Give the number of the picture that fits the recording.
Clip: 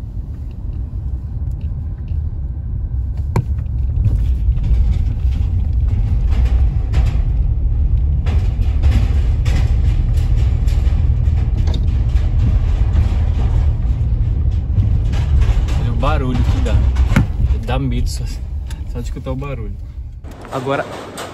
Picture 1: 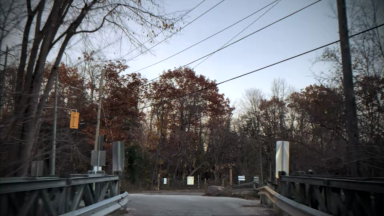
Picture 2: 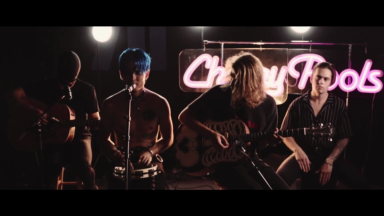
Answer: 1